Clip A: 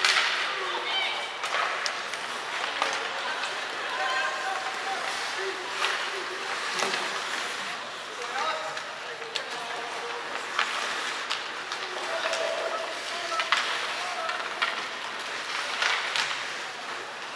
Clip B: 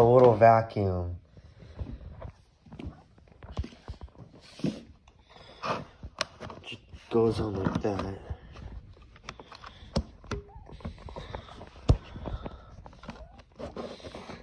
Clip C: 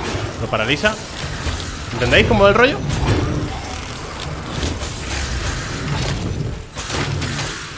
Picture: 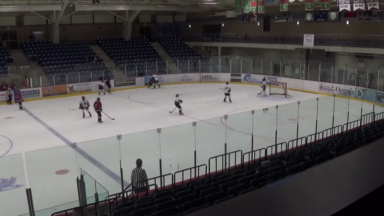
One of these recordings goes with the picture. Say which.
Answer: A